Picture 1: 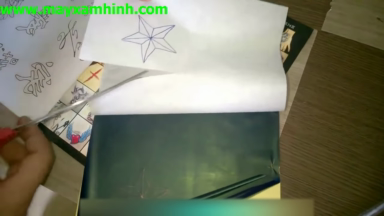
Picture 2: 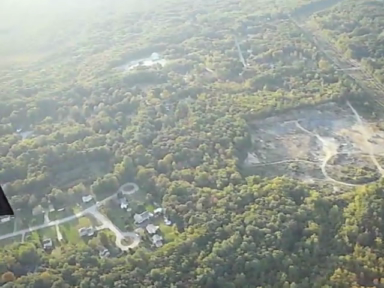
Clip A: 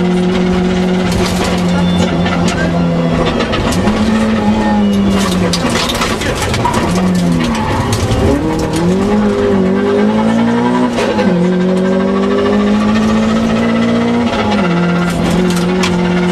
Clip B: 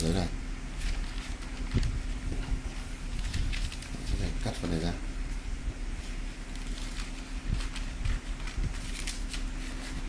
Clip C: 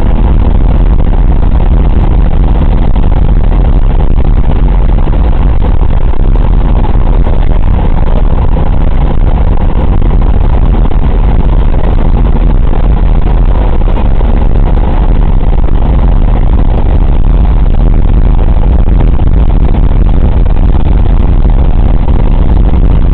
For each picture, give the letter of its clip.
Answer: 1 B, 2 C